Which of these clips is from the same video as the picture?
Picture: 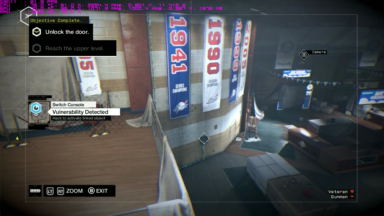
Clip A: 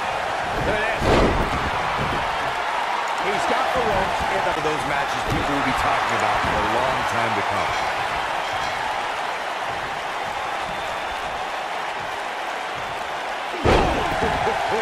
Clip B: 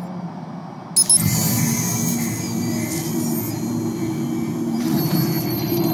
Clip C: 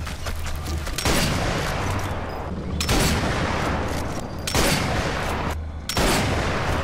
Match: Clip B